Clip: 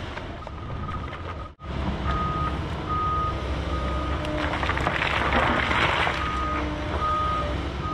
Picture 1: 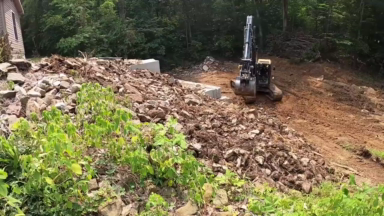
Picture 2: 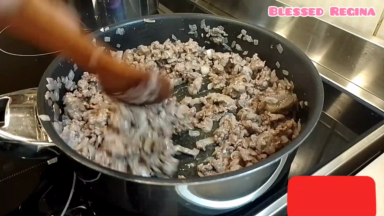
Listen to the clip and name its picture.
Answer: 1